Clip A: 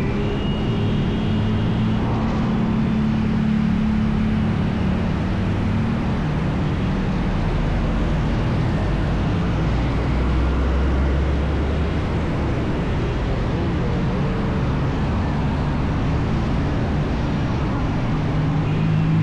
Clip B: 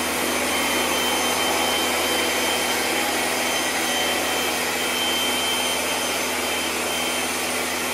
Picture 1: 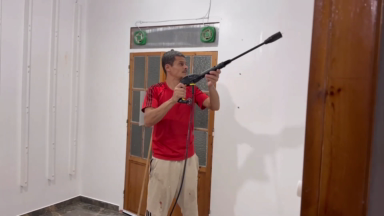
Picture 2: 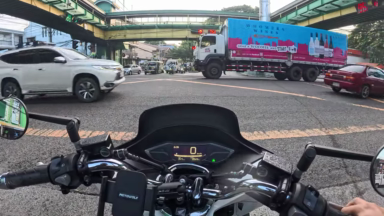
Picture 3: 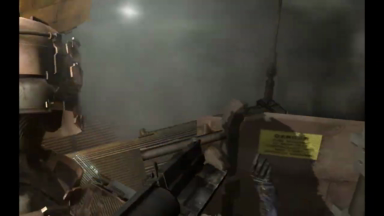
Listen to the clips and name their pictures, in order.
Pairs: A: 2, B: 1